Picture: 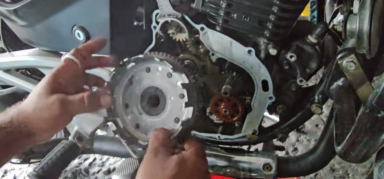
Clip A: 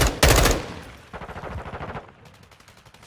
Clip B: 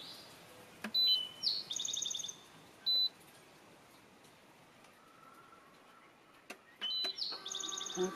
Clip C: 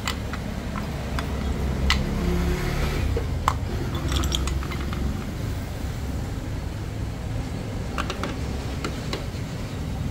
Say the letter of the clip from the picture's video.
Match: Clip C